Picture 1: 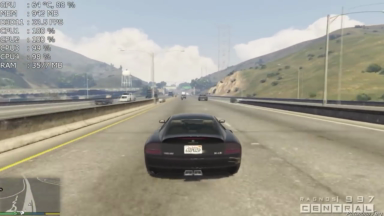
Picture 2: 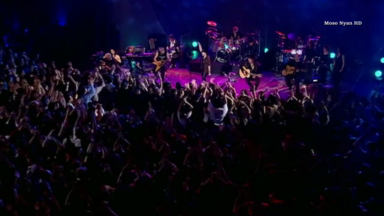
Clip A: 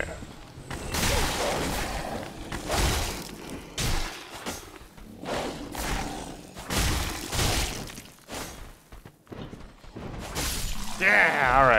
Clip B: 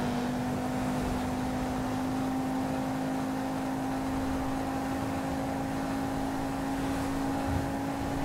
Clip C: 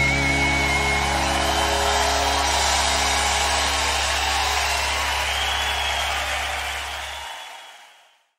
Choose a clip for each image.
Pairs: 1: B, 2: C